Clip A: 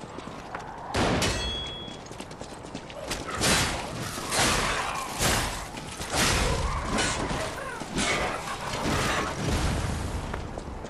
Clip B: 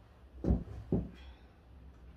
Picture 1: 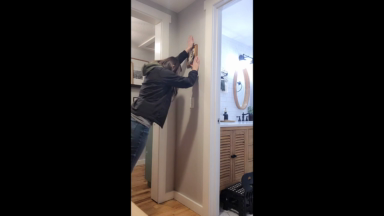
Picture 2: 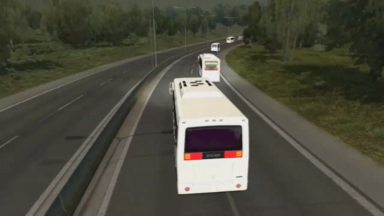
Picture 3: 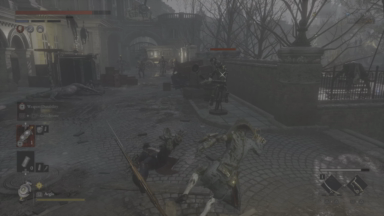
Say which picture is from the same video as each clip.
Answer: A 3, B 1